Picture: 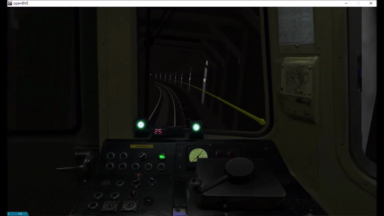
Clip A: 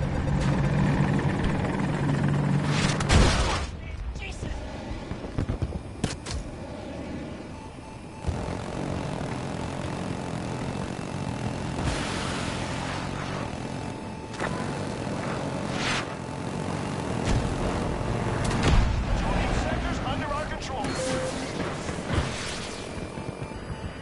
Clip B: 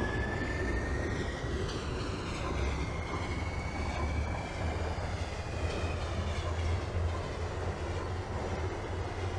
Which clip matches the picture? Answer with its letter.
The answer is B